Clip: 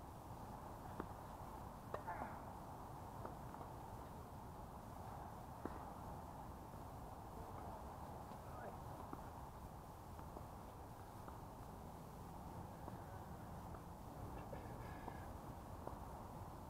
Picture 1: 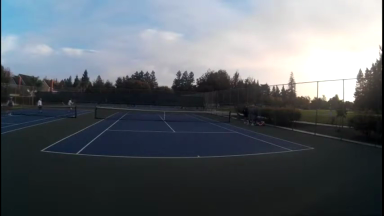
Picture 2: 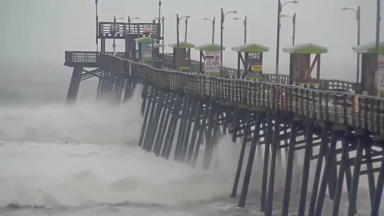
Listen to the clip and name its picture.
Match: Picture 1